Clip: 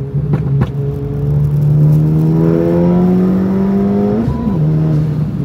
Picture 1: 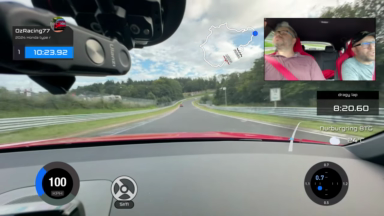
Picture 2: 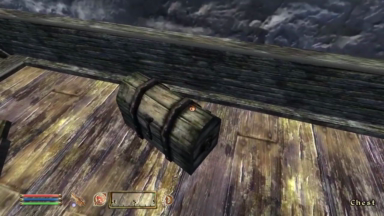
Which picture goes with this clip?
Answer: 1